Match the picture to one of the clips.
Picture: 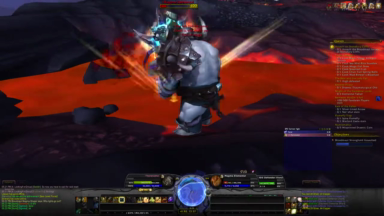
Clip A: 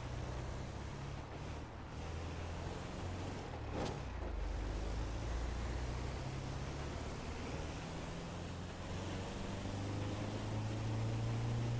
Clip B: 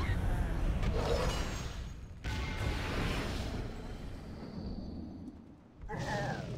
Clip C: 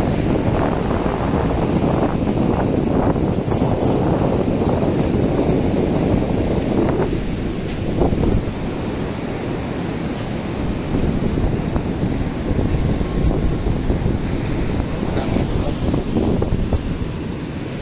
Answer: B